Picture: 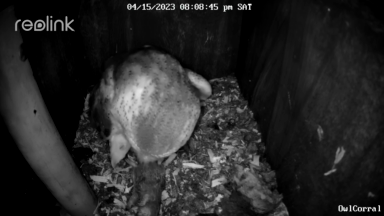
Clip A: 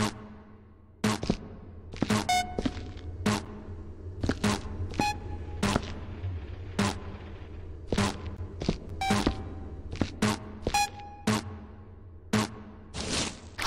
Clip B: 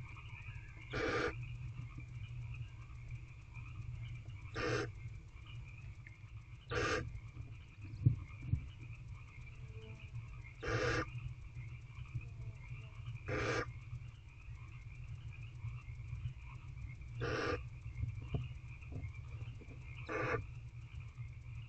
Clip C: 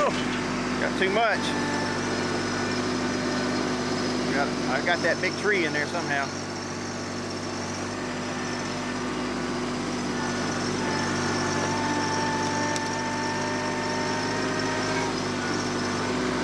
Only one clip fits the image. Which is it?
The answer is B